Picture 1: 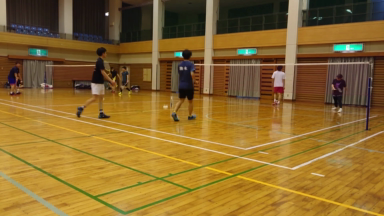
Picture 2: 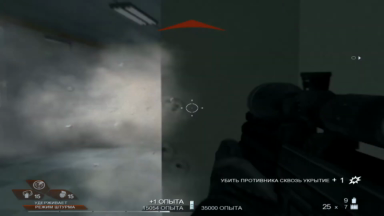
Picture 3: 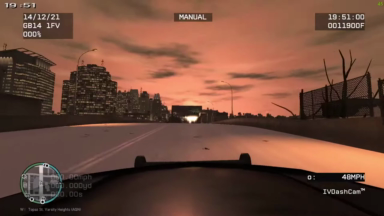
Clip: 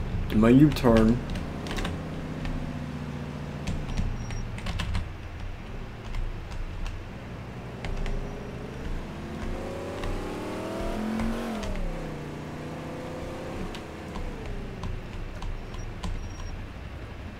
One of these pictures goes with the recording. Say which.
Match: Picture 3